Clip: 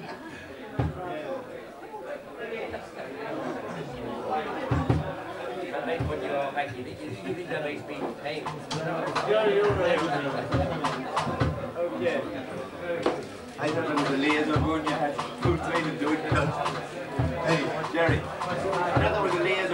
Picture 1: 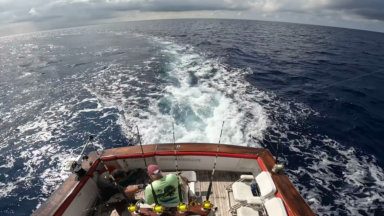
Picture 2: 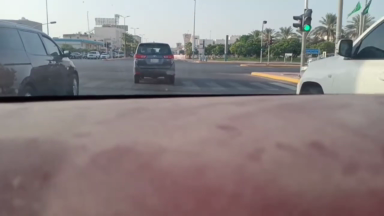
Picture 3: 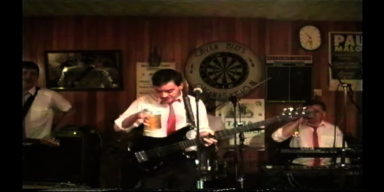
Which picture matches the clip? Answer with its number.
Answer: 3